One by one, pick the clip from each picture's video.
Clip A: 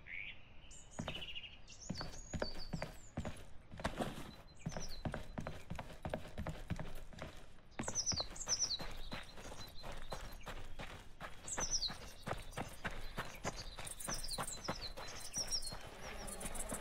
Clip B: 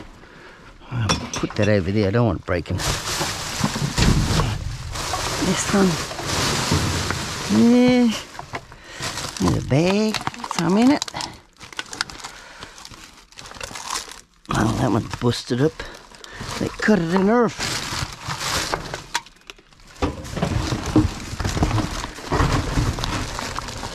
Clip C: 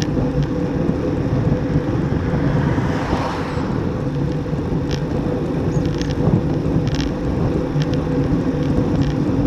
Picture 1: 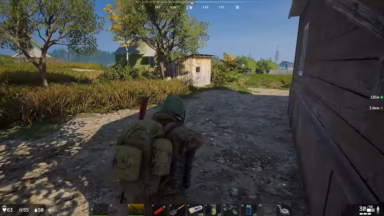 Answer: A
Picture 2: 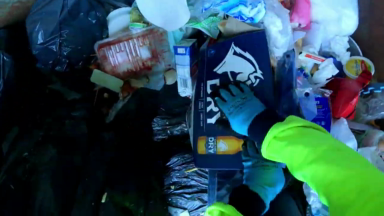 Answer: B